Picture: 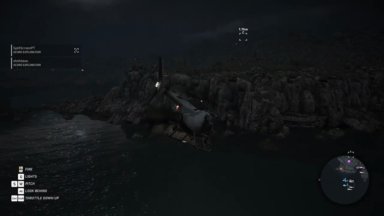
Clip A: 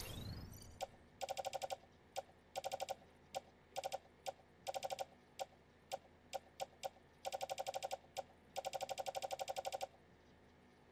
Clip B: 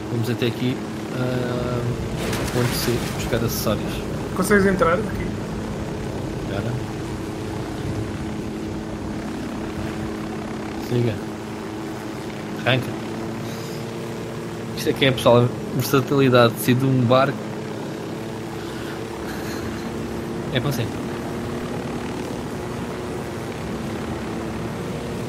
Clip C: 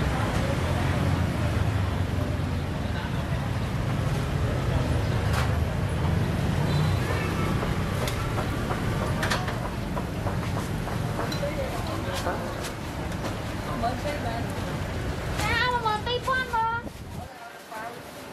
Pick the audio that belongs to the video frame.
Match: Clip B